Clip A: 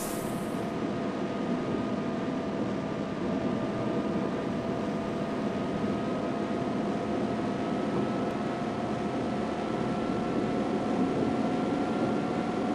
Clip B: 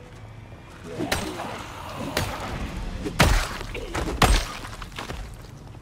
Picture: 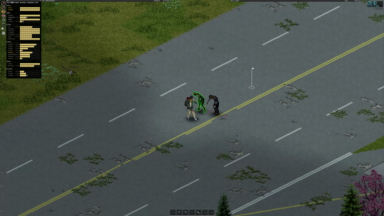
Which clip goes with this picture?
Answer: B